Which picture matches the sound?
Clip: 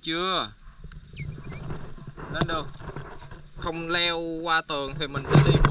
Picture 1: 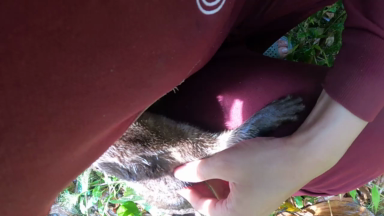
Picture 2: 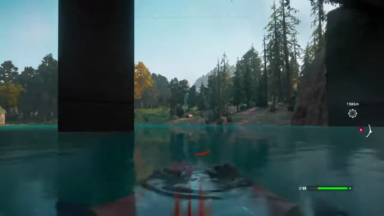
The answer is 1